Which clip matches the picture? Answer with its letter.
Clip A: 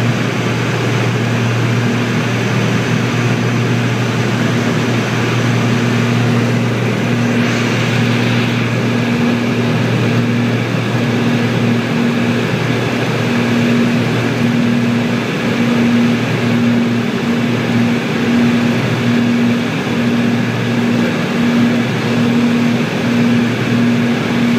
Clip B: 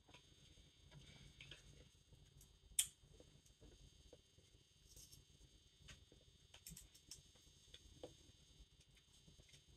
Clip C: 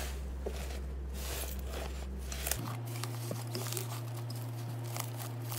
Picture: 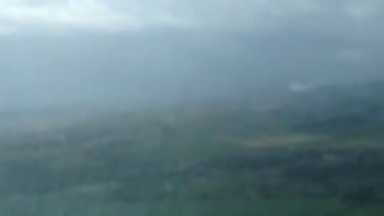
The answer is A